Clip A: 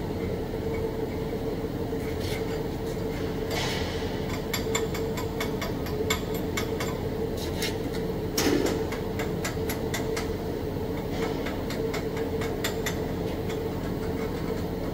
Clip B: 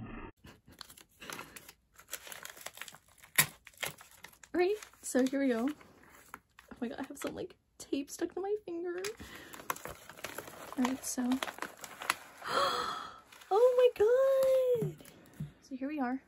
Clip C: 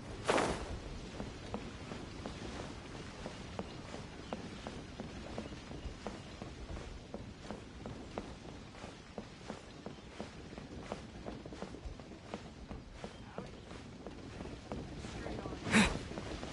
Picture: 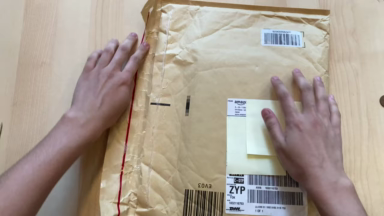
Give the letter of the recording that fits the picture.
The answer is B